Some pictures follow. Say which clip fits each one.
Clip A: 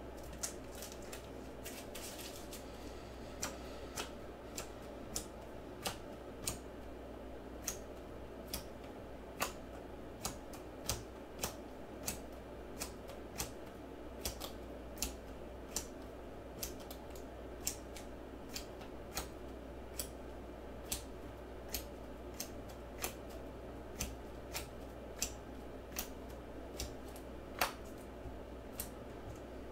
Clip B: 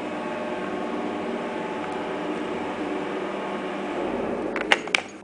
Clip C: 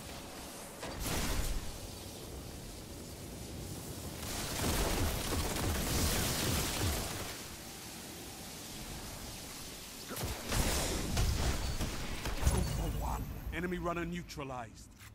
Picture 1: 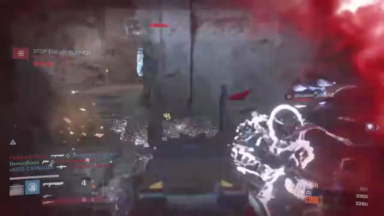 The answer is C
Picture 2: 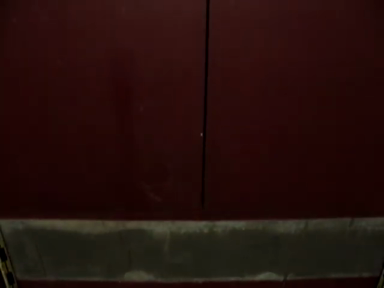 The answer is B